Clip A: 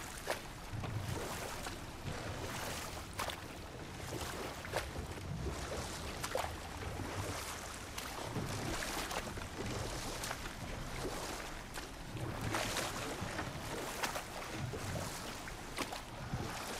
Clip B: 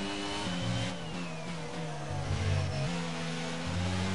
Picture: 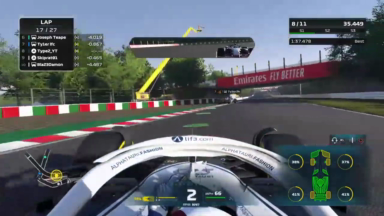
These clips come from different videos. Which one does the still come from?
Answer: B